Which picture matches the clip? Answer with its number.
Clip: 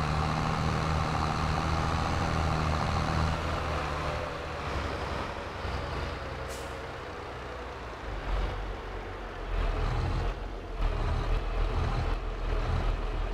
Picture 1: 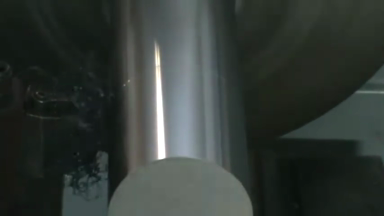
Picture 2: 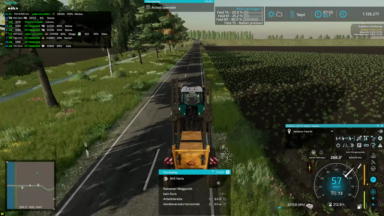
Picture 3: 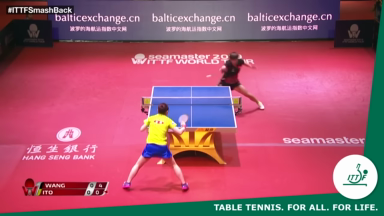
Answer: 2